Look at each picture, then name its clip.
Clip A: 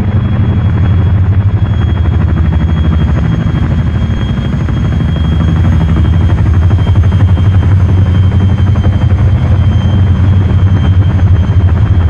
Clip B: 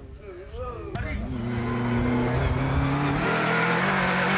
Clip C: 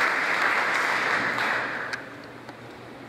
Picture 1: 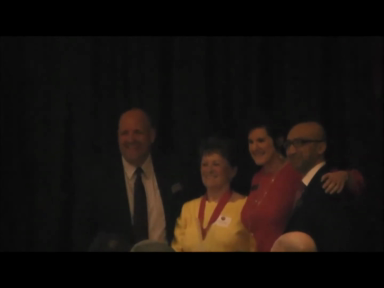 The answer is C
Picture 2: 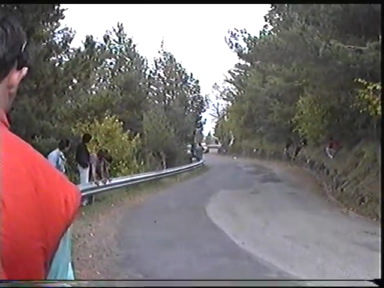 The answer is B